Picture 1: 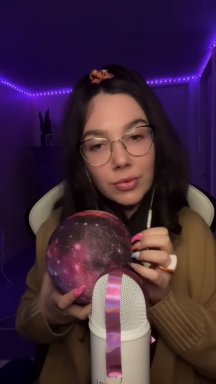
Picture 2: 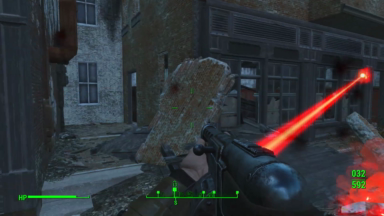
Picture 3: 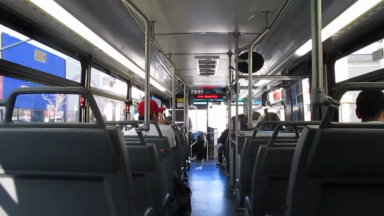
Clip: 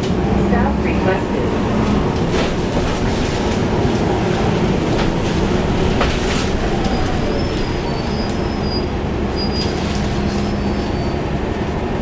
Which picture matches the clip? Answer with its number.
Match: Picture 3